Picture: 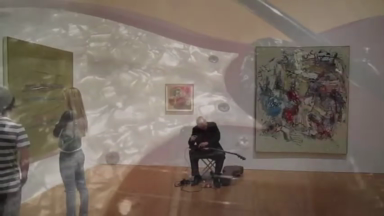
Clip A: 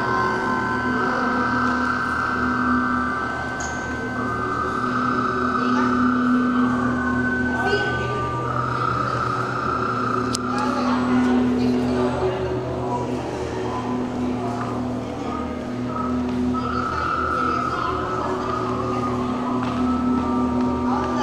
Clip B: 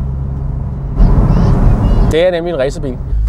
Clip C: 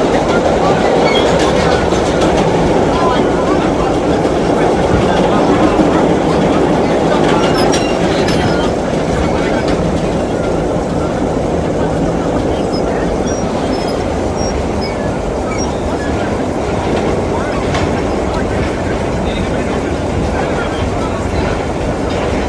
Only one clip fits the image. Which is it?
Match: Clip A